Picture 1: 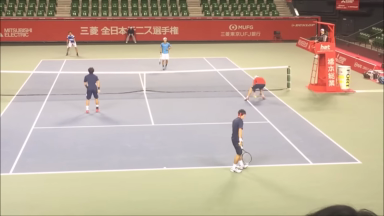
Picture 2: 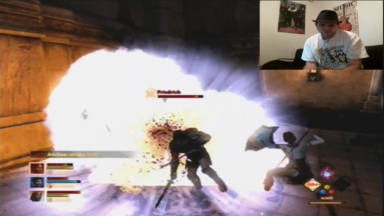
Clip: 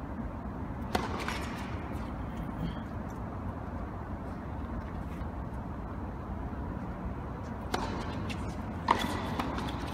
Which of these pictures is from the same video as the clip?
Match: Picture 1